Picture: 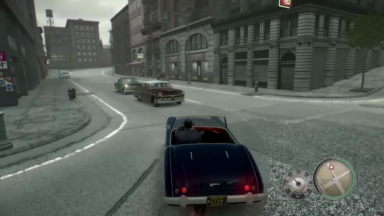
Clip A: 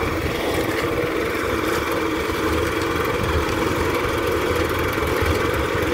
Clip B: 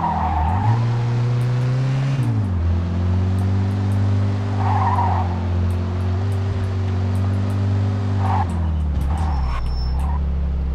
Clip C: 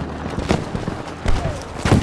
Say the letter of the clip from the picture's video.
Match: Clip B